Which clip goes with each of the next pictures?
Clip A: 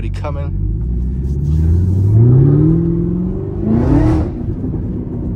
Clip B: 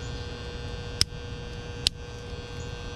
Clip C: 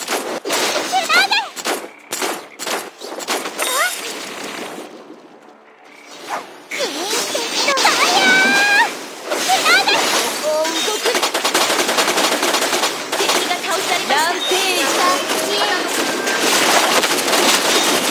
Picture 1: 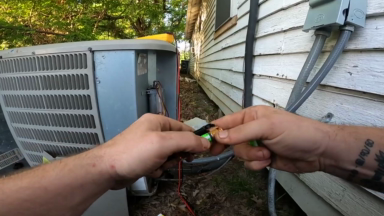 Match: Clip B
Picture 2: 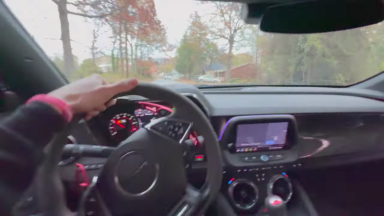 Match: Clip A